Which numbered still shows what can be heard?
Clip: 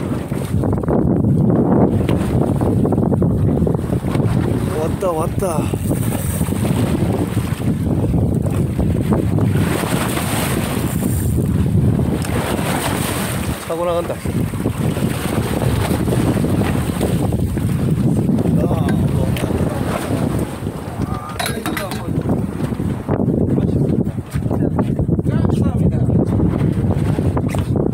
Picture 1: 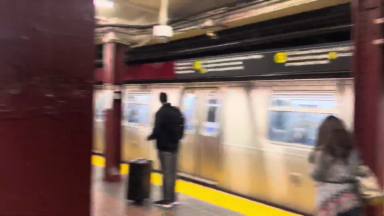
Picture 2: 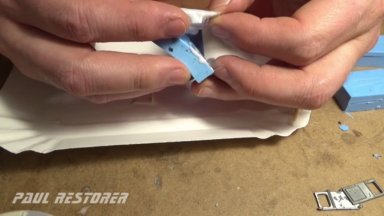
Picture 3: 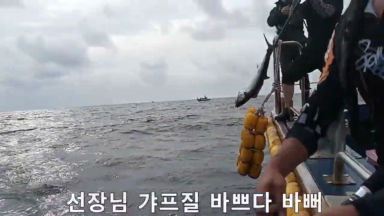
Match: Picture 3